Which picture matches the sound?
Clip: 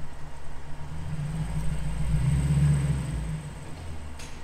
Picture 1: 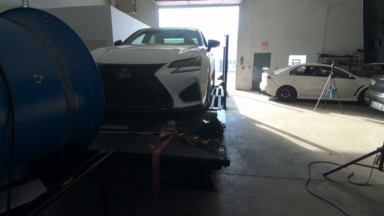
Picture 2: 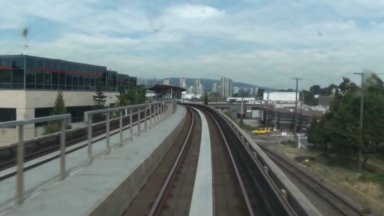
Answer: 1